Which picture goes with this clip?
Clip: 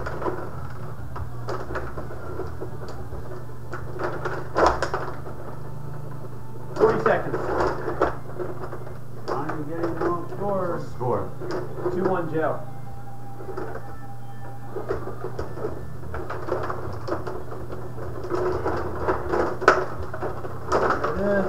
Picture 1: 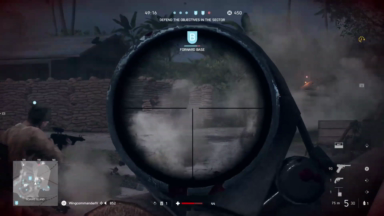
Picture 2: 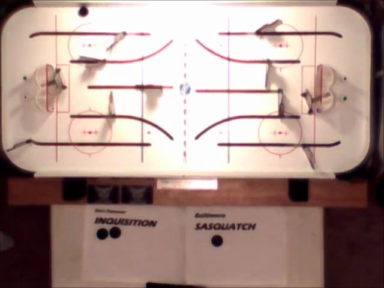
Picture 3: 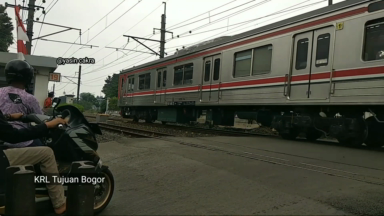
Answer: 2